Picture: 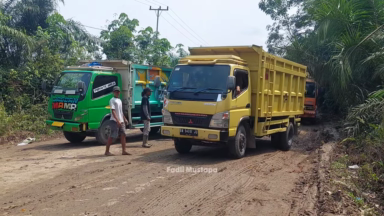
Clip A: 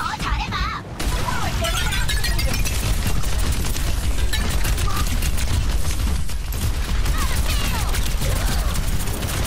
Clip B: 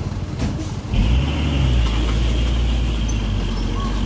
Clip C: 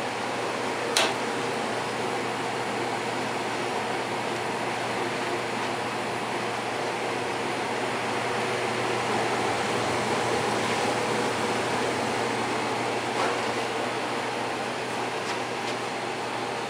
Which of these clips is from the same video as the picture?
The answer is B